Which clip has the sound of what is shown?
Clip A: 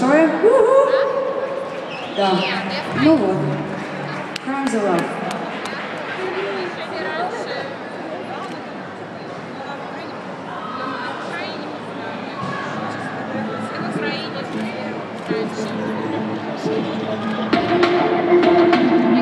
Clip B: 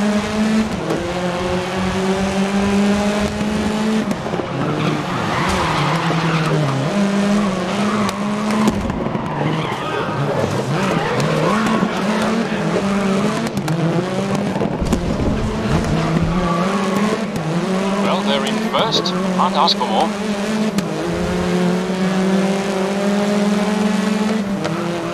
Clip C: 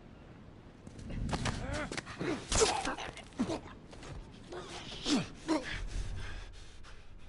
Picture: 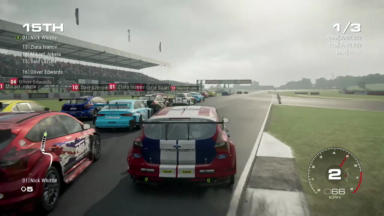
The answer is B